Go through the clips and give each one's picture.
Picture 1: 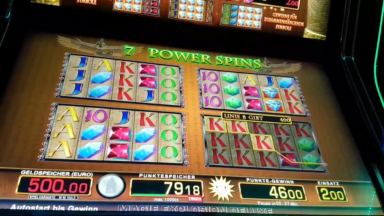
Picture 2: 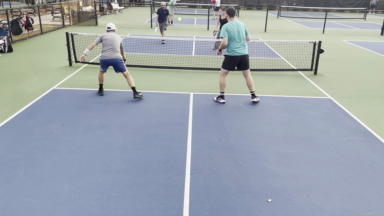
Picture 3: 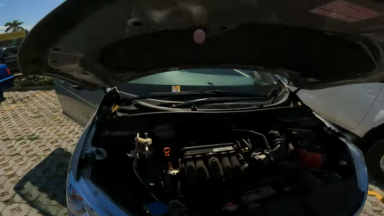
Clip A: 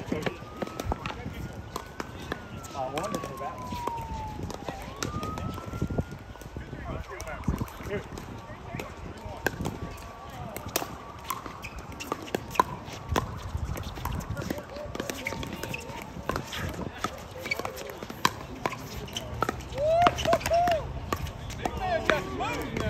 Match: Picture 2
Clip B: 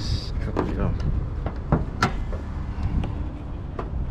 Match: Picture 3